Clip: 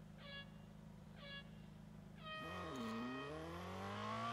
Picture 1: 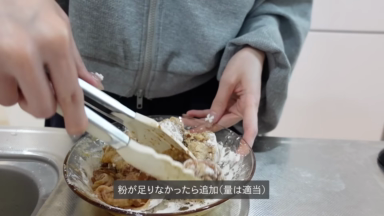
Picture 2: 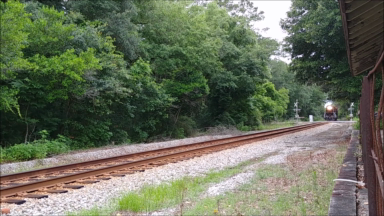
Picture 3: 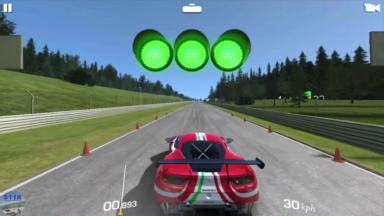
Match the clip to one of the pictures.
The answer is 3